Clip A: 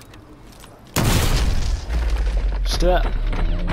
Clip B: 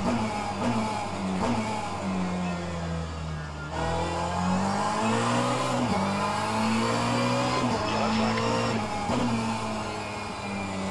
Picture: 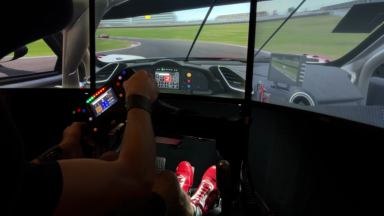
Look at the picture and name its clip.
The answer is B